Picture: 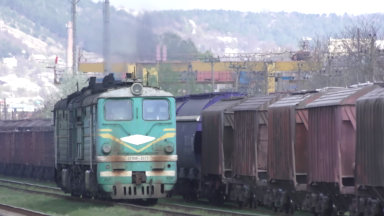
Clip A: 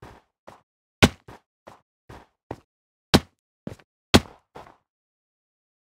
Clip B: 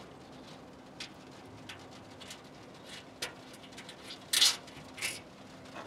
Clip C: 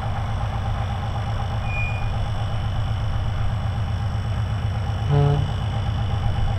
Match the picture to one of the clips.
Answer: C